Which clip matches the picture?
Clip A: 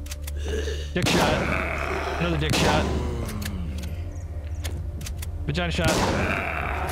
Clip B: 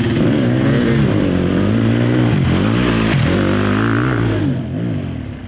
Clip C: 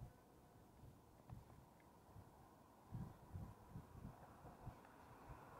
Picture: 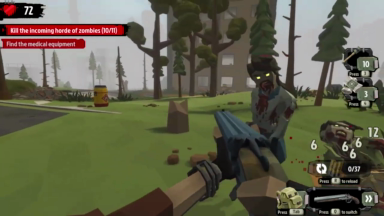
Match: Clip A